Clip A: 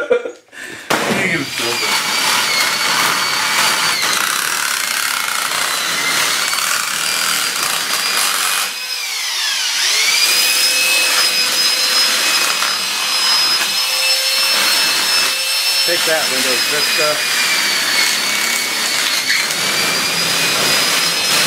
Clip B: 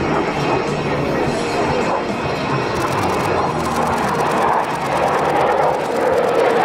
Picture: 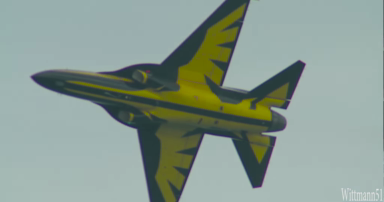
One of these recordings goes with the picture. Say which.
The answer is B